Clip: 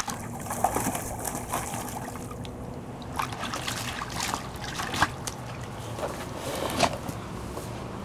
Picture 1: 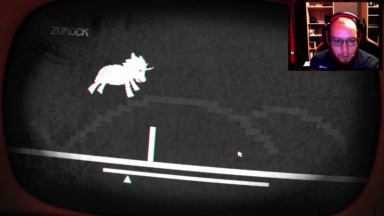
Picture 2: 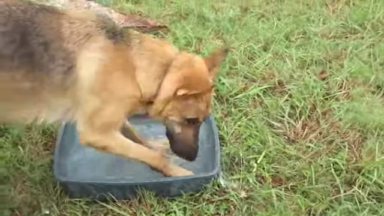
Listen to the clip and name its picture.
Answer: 2